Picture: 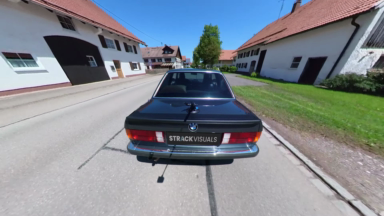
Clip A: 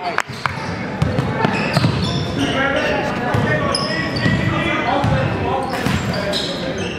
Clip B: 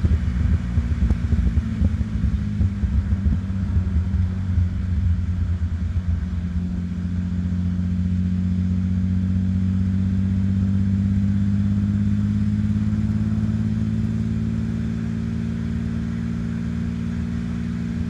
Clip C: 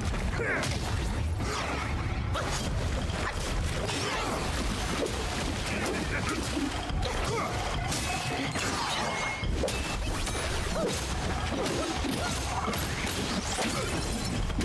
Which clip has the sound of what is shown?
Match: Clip B